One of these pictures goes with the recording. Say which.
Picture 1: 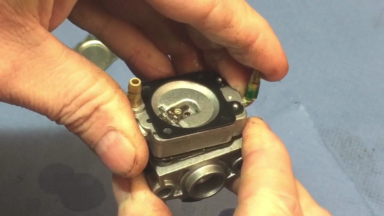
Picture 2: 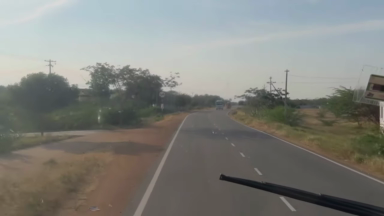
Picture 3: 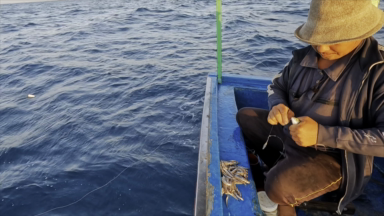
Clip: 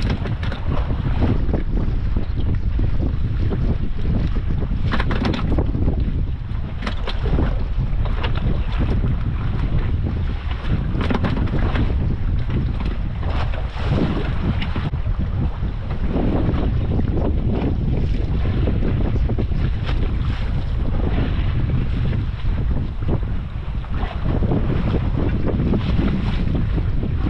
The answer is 3